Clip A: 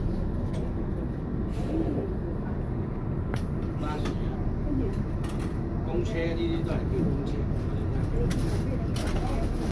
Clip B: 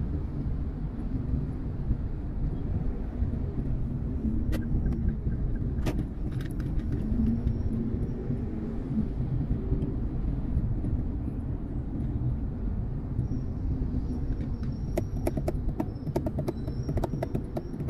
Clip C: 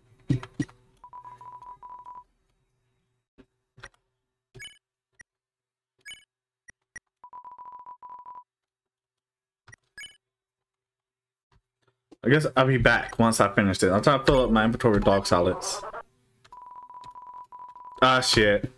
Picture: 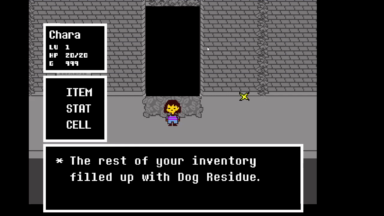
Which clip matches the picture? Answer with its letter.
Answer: C